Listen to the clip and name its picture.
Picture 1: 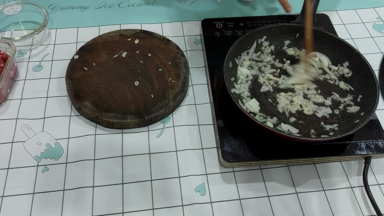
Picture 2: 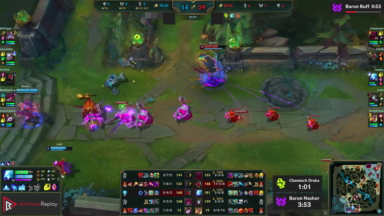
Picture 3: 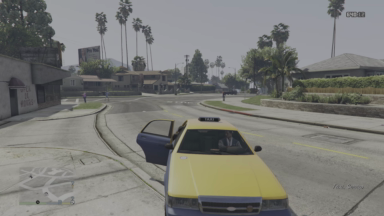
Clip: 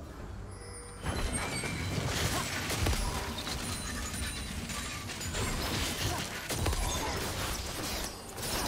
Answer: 2